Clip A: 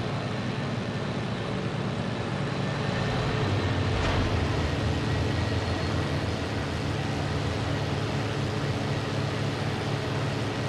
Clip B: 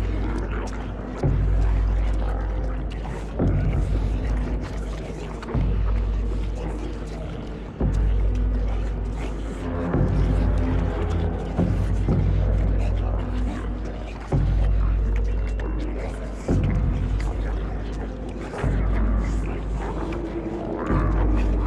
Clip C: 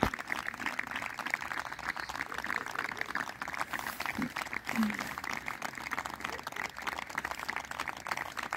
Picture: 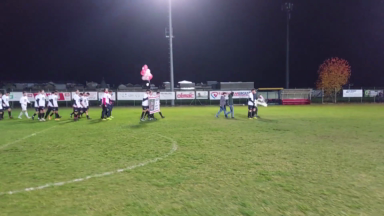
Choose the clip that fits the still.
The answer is C